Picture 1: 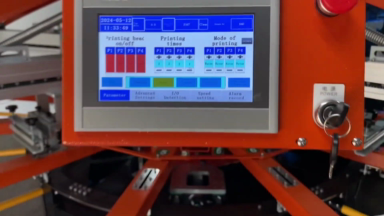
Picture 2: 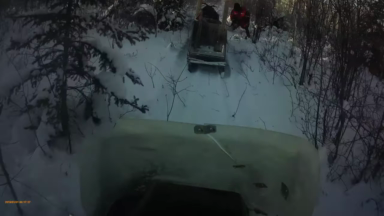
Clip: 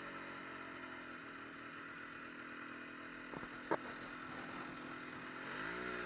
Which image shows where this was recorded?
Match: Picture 2